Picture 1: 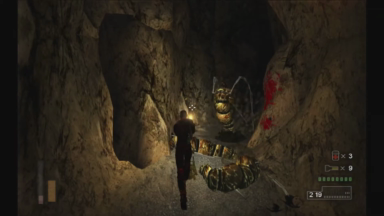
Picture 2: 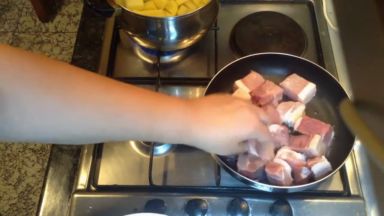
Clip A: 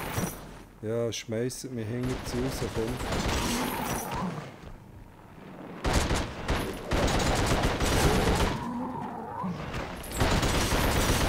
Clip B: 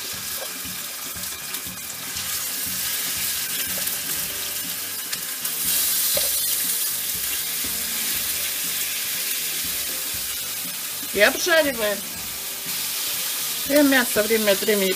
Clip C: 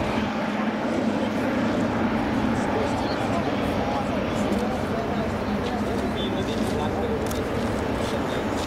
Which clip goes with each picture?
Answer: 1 A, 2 B